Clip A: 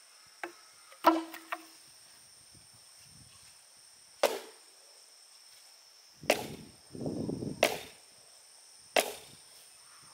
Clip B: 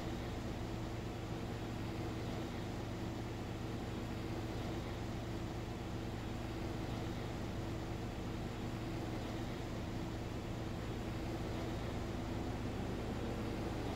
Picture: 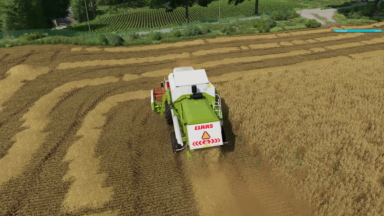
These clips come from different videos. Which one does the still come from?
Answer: B